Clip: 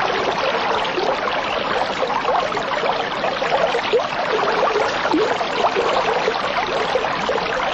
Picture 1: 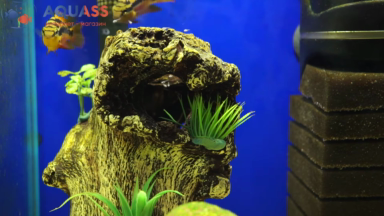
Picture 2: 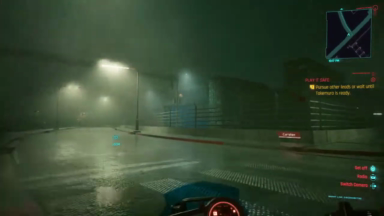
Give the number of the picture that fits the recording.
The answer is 1